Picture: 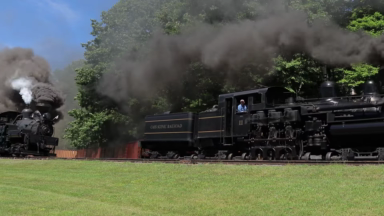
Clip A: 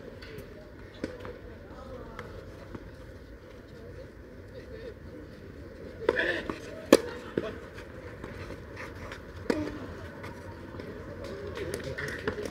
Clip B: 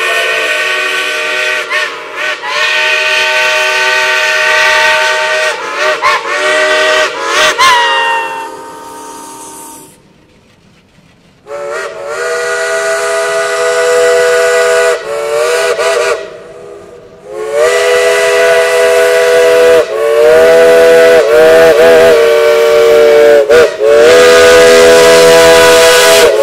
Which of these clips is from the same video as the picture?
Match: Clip B